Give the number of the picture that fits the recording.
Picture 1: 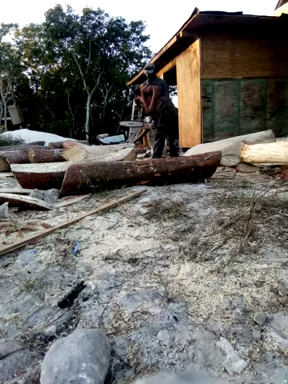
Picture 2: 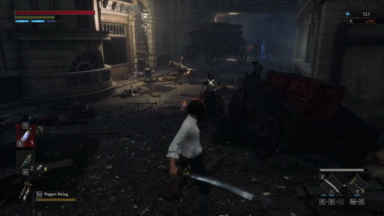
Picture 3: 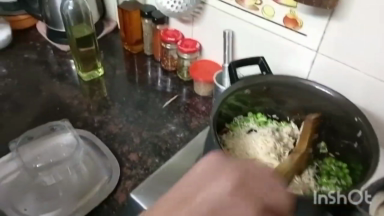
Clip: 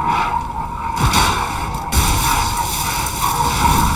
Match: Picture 2